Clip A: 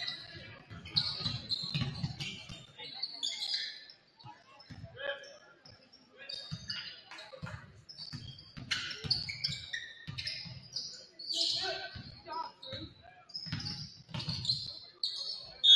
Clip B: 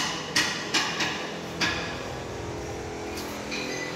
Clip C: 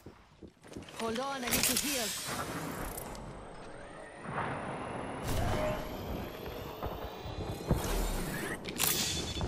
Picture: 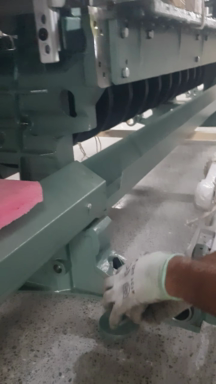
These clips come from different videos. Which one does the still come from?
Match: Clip B